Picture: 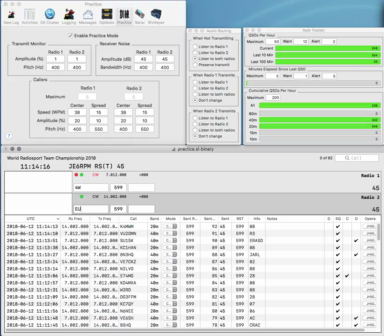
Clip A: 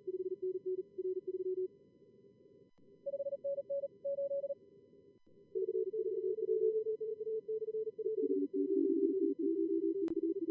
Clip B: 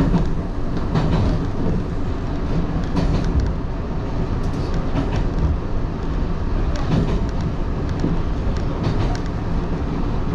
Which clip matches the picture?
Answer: A